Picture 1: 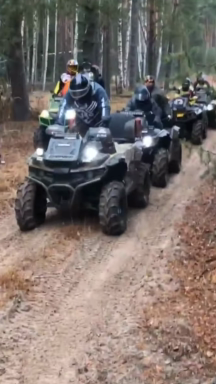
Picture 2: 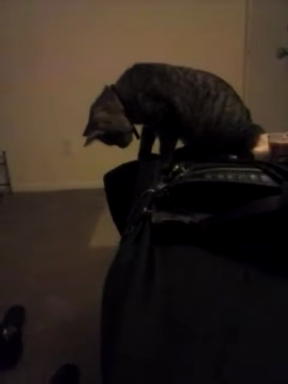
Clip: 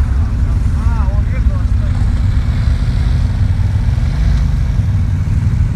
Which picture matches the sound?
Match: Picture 1